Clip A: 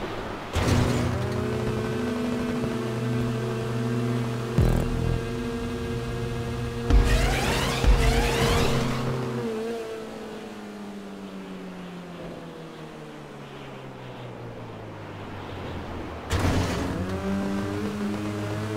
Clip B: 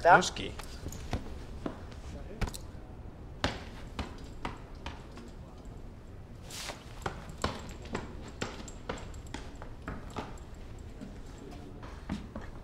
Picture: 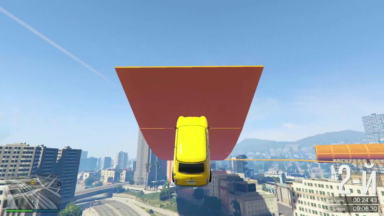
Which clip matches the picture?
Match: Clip A